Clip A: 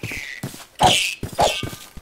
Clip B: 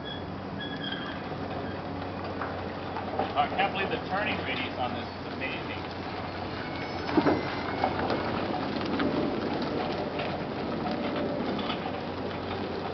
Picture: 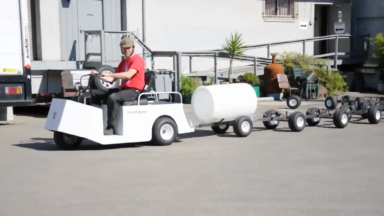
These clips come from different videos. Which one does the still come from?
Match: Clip B